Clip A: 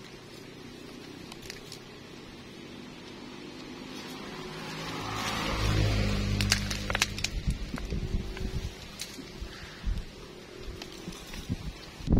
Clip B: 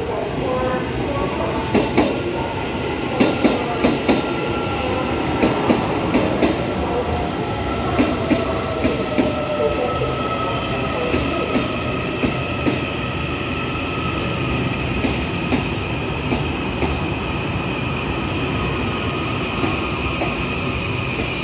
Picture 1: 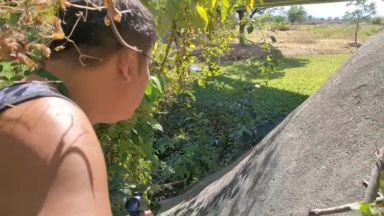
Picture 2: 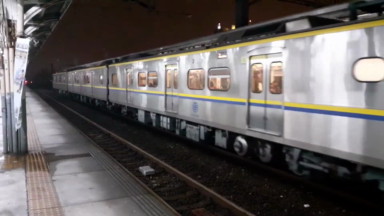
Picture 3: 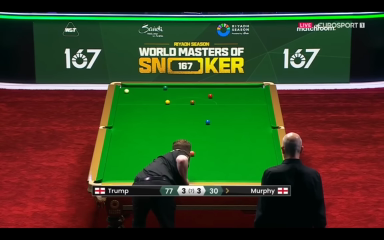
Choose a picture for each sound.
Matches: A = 1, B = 2